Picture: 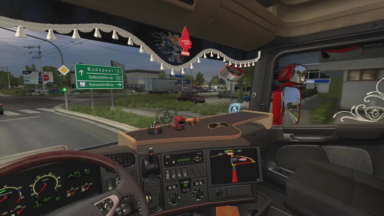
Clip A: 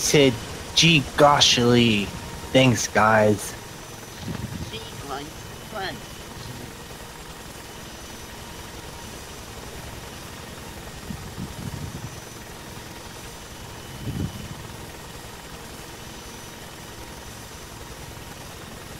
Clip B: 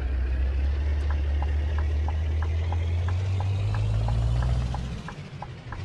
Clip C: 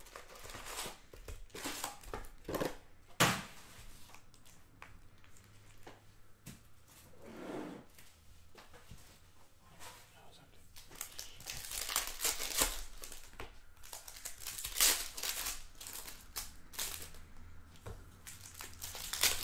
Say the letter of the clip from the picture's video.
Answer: B